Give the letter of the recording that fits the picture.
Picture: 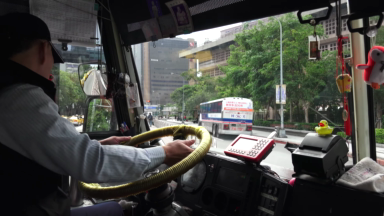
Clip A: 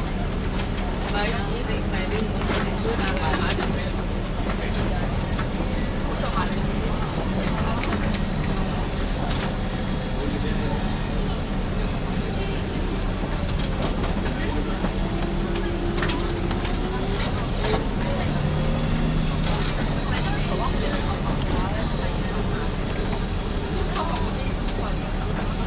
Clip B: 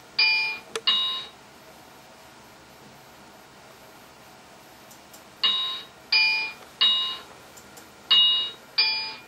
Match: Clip A